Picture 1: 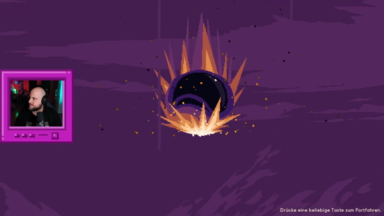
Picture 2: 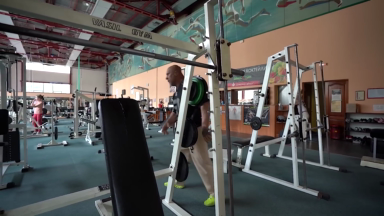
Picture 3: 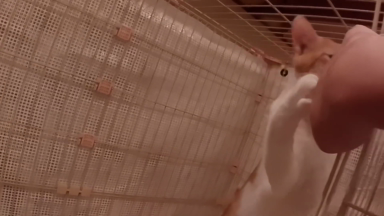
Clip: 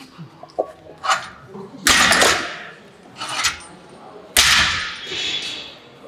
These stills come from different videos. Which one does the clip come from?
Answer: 2